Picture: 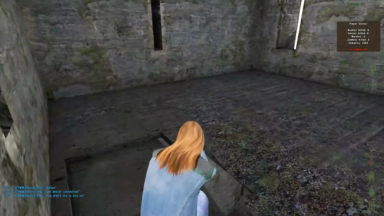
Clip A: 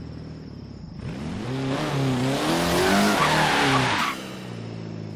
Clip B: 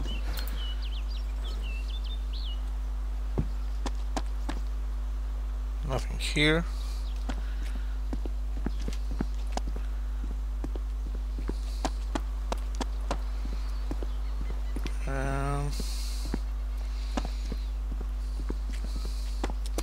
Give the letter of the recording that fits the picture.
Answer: B